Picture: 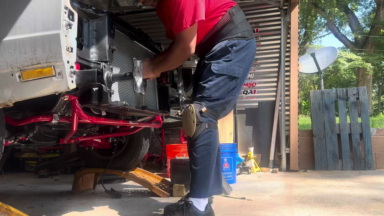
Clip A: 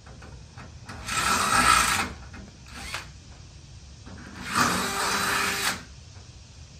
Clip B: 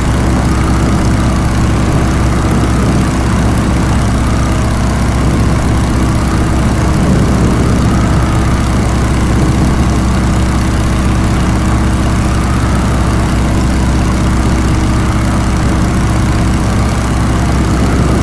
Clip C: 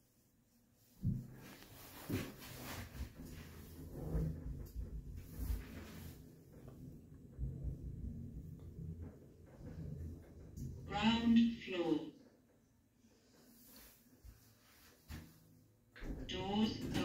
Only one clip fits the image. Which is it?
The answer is A